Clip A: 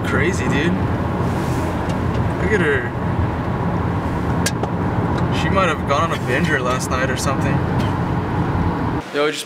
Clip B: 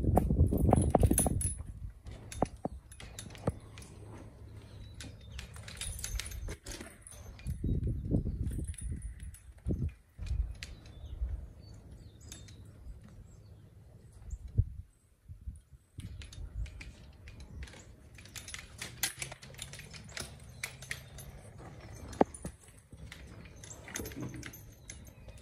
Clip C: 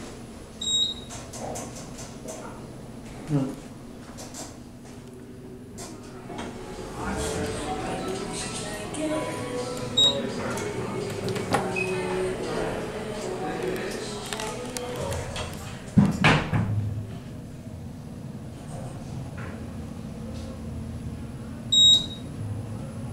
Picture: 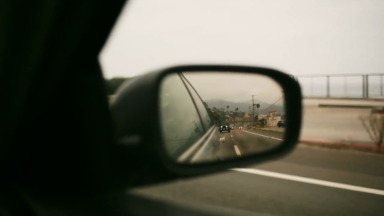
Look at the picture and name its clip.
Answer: A